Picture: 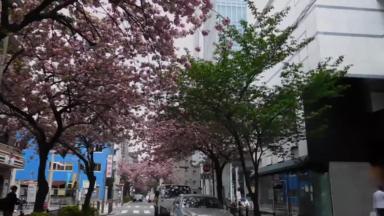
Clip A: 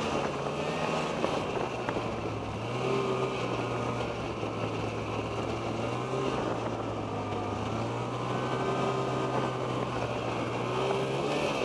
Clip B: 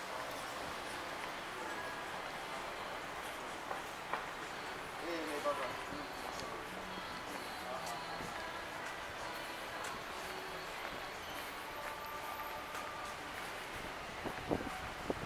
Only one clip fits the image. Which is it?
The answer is B